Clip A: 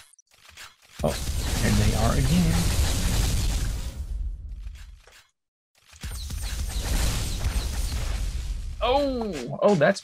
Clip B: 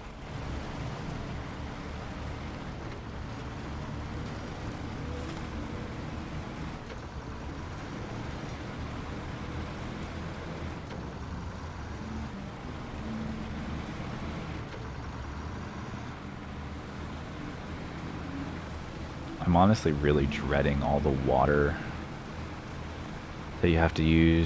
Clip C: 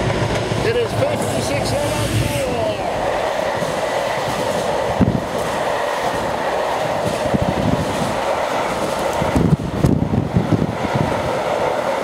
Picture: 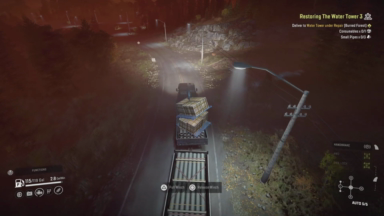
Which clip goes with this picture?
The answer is B